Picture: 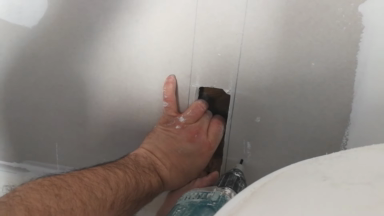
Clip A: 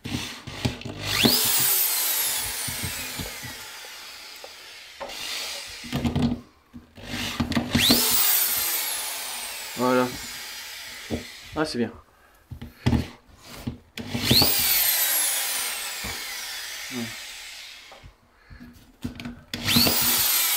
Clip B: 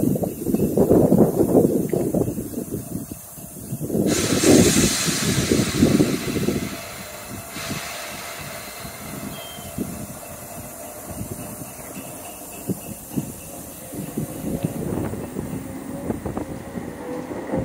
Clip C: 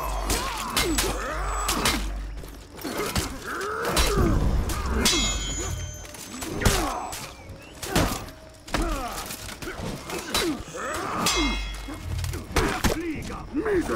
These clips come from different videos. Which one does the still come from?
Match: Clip A